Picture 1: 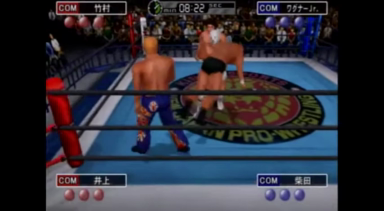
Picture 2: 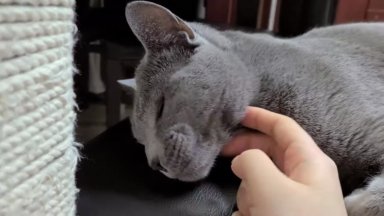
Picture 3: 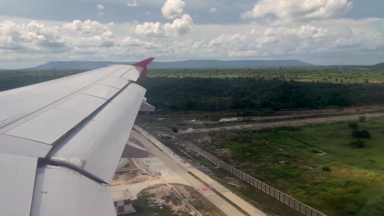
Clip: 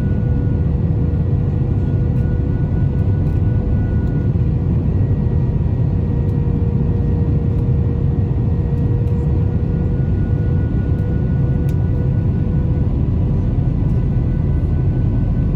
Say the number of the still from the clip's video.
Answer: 3